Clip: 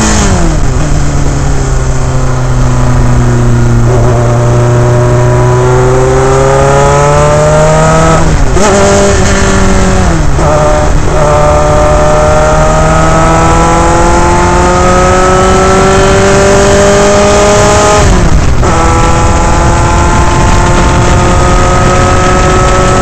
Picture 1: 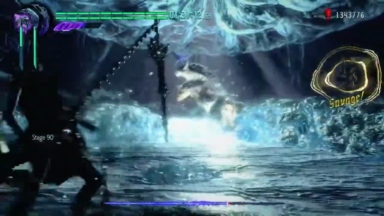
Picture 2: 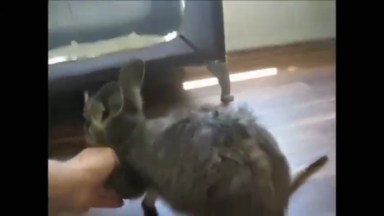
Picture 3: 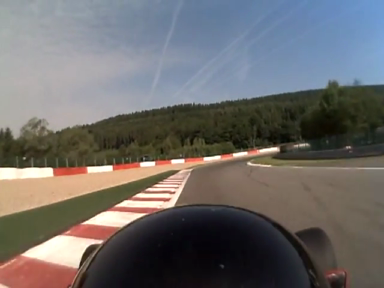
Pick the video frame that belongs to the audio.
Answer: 3